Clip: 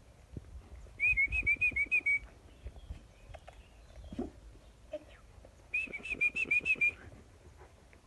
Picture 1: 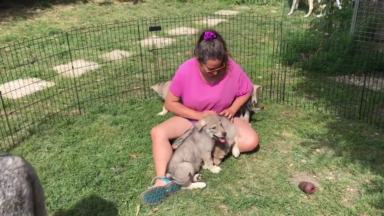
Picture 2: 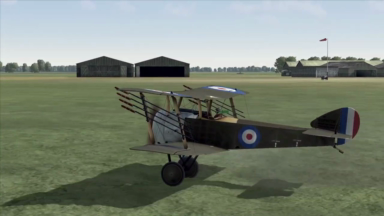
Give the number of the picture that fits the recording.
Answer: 1